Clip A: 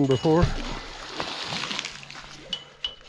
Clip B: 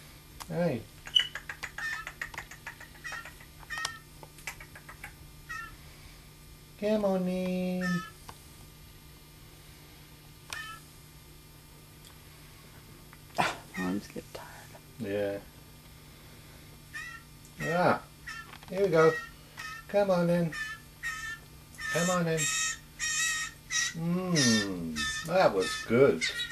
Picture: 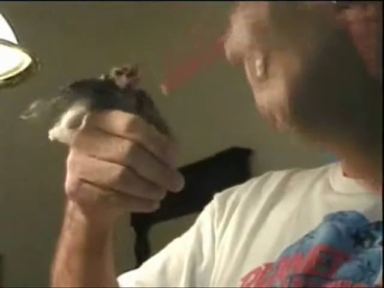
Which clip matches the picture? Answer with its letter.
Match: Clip B